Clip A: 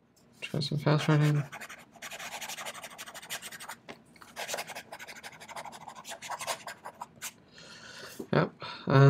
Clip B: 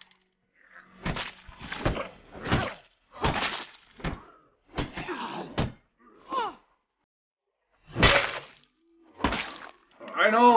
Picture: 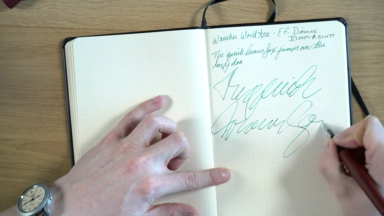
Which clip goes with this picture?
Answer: A